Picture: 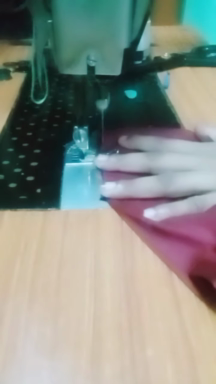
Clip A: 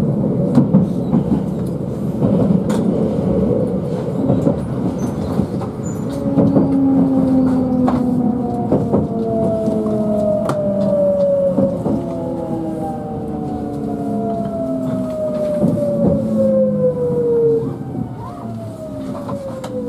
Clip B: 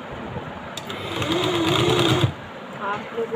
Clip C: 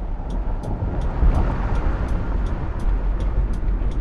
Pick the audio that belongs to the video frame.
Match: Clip B